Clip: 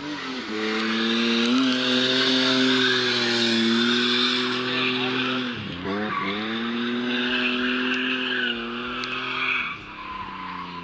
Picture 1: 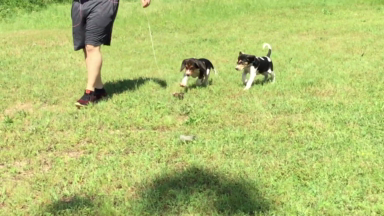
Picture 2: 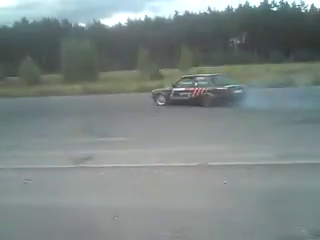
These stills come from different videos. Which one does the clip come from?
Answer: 2